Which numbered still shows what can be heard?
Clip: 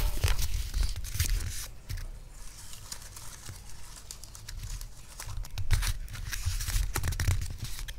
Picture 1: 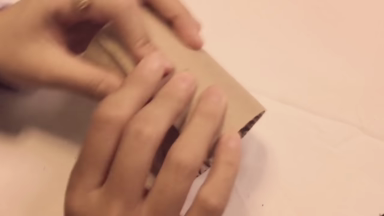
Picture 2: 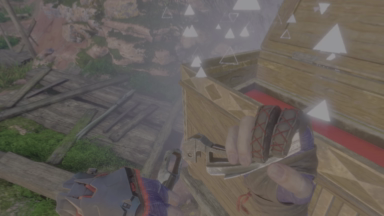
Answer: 1